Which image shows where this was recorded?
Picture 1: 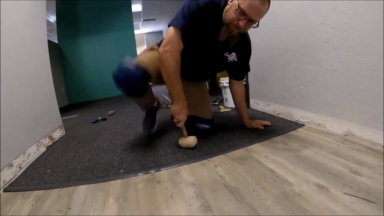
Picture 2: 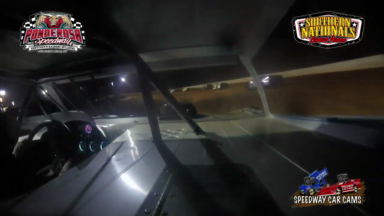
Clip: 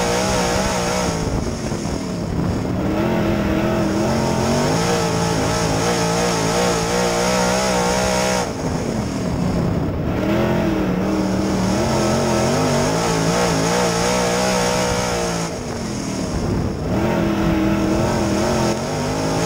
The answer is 2